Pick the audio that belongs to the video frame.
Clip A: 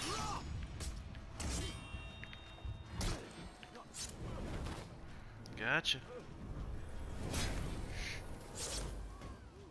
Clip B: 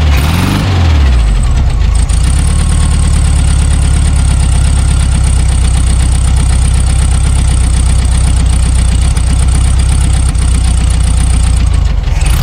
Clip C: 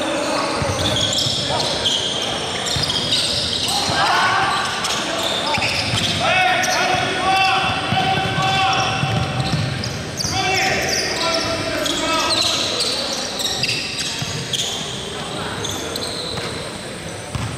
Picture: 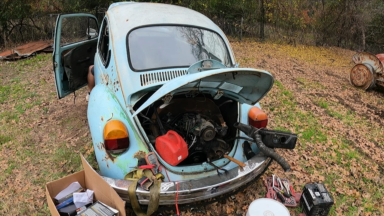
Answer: B